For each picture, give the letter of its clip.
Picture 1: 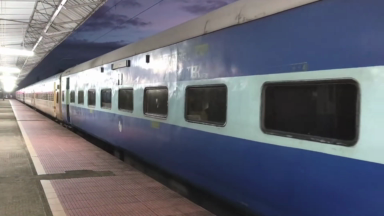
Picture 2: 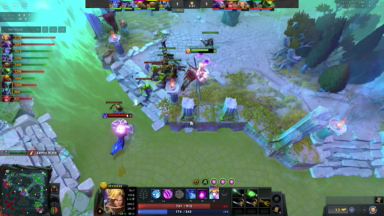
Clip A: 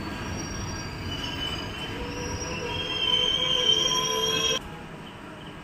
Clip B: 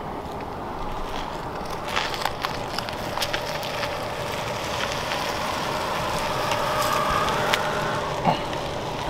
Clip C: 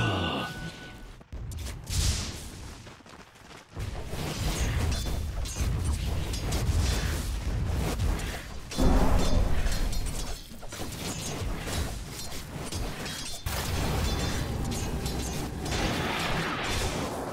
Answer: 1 A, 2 C